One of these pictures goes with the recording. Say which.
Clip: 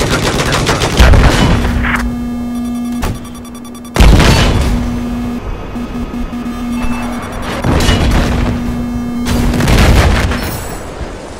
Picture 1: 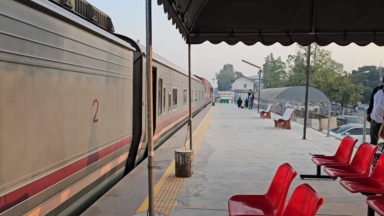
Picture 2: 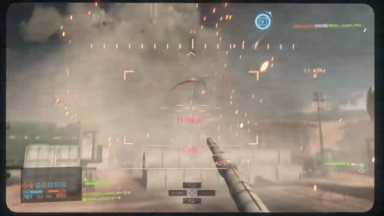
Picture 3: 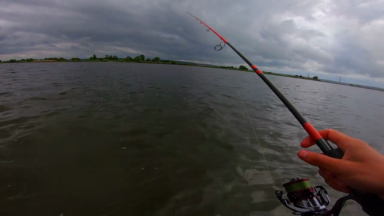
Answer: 2